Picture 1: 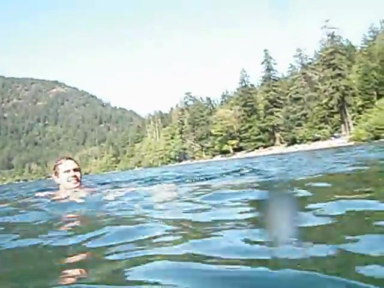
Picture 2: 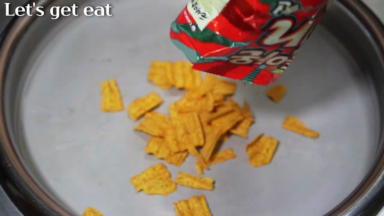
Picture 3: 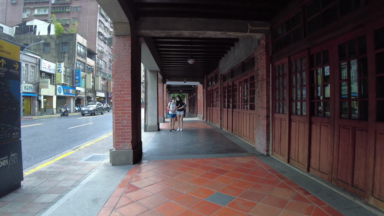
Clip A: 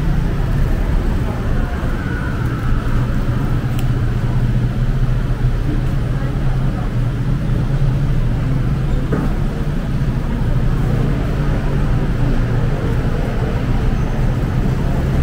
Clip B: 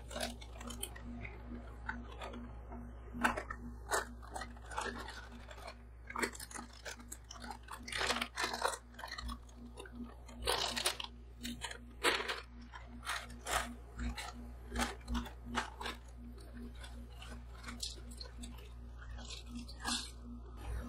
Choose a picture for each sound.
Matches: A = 3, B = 2